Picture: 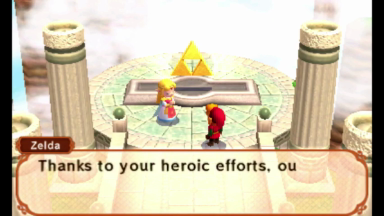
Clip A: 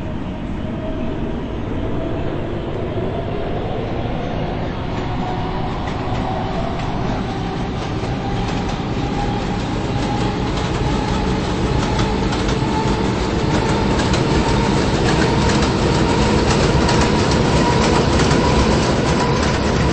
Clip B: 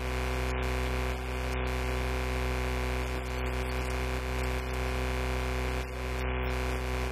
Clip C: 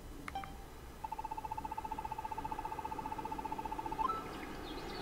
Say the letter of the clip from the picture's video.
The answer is C